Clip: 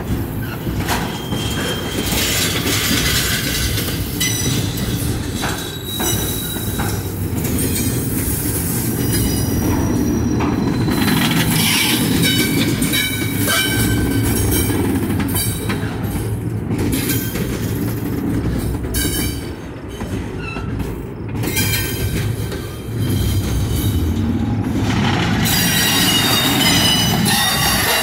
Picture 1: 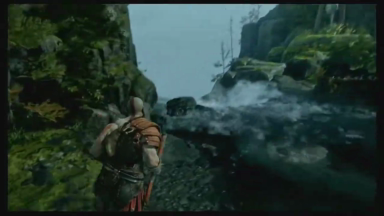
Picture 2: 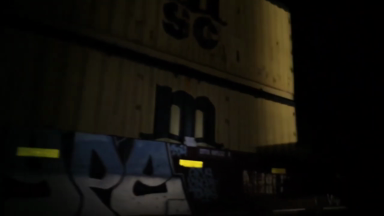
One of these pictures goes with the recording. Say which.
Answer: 2